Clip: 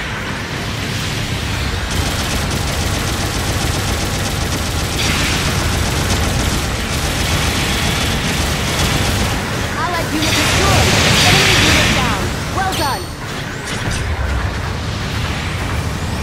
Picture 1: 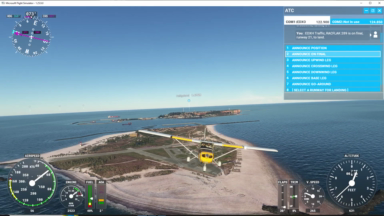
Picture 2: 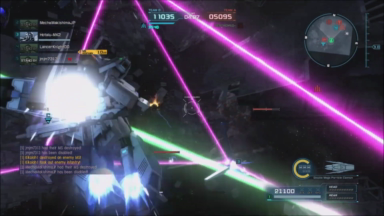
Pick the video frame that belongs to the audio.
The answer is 2